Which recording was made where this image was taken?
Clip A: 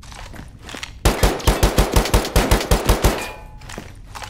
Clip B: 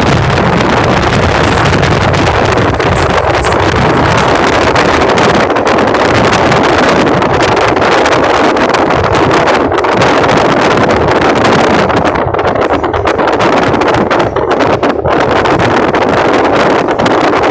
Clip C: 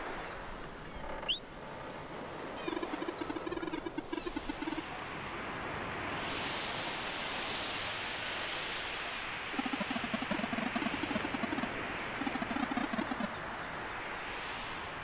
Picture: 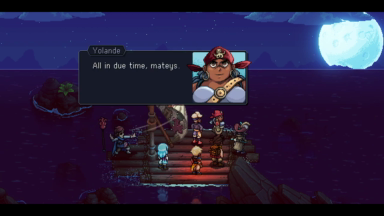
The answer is C